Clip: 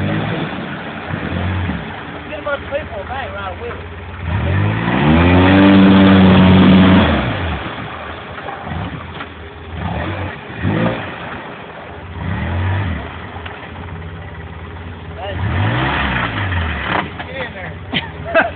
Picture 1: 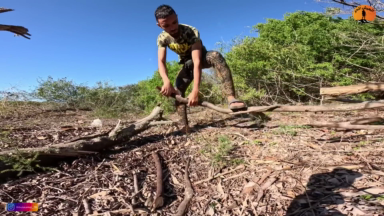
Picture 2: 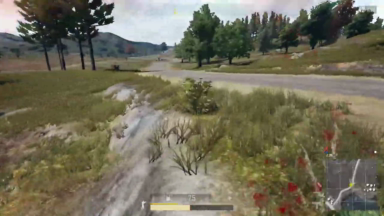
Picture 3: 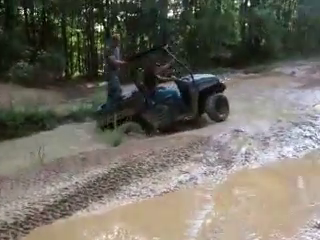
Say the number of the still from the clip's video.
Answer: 3